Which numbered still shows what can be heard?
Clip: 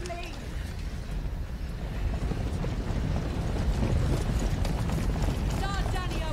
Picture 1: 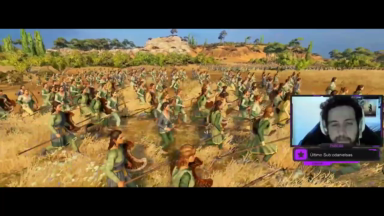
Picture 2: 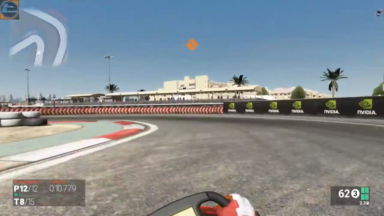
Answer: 1